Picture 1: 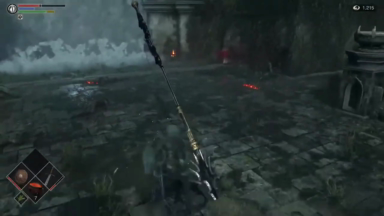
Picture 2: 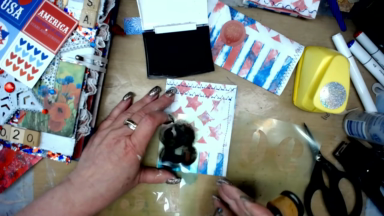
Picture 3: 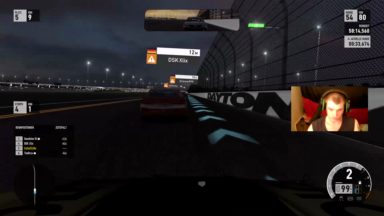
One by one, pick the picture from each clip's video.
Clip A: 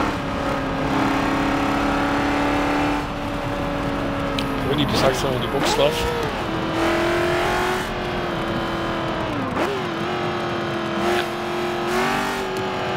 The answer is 3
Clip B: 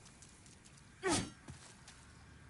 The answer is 1